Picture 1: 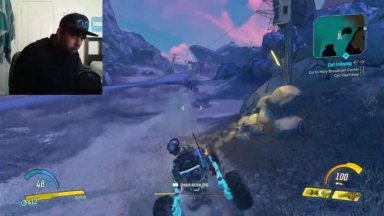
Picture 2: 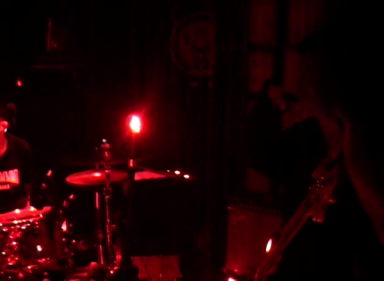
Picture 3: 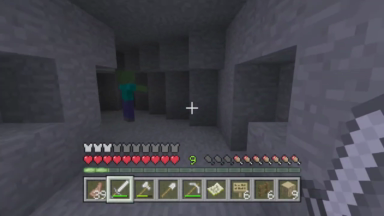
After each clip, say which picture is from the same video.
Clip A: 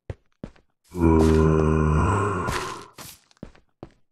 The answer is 3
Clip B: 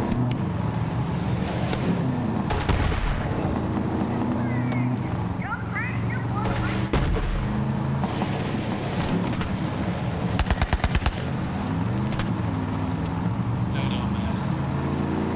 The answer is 1